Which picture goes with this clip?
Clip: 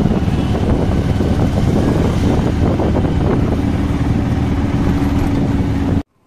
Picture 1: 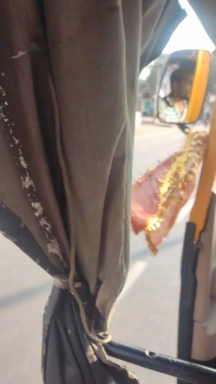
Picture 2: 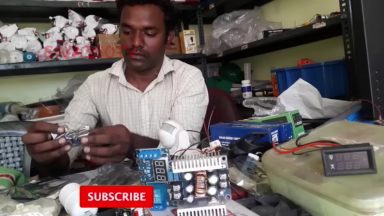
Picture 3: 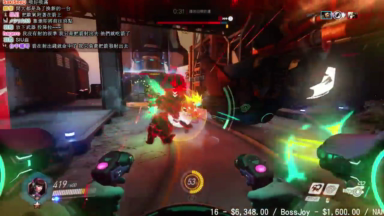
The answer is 1